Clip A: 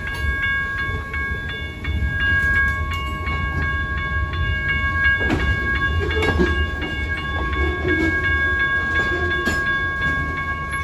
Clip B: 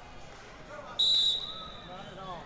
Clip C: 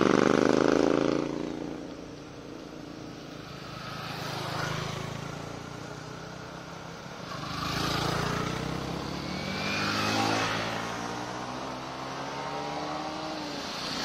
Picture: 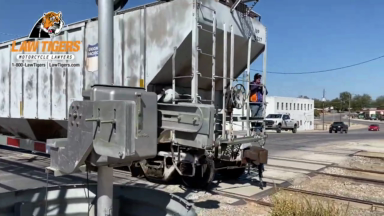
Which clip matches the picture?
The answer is A